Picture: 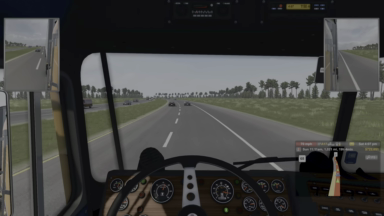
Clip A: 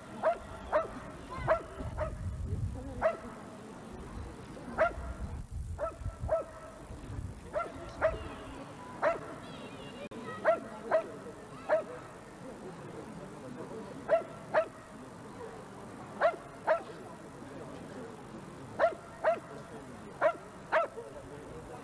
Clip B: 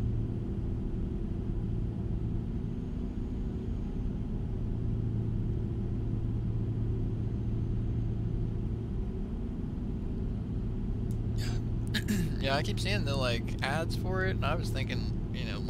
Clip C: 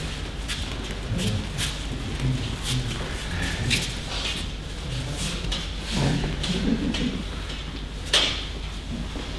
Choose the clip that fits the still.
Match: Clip B